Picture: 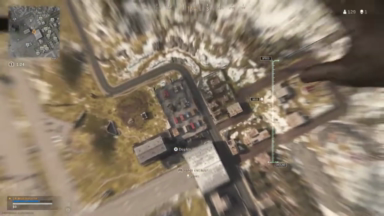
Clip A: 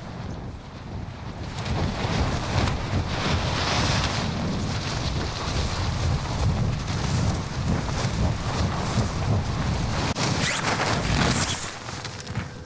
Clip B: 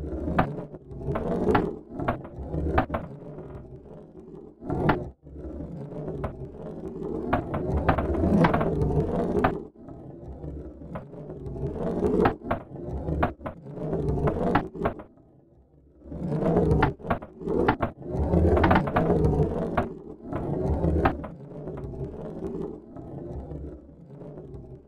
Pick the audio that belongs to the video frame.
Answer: A